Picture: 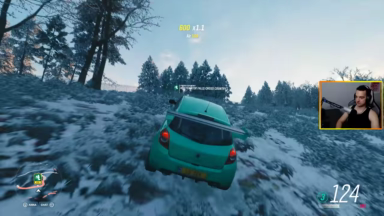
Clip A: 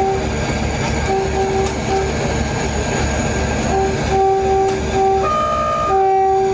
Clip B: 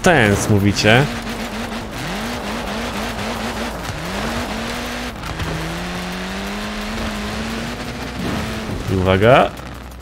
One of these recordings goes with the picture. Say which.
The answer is B